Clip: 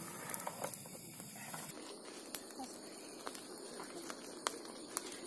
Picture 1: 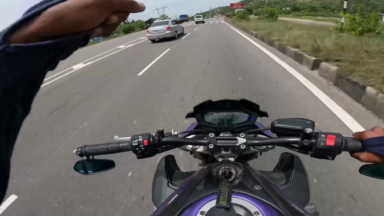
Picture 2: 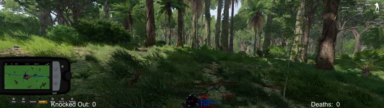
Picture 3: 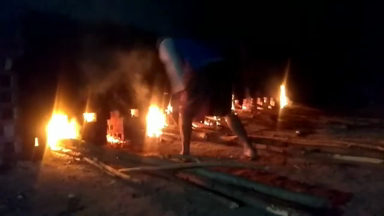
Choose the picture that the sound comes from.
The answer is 3